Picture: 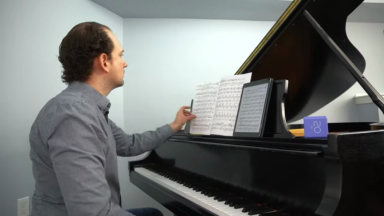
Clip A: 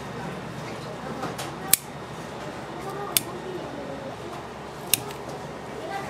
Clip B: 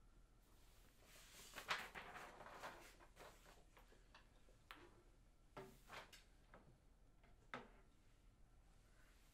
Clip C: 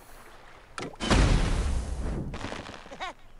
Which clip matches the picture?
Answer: B